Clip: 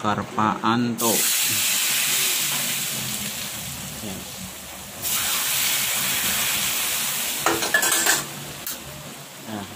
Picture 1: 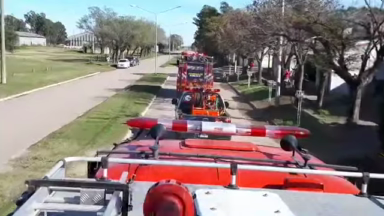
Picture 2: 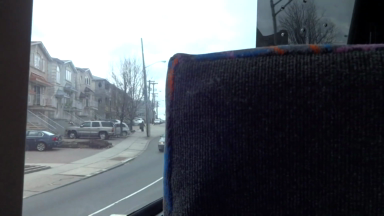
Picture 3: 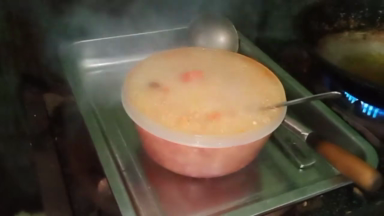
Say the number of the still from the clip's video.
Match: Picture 3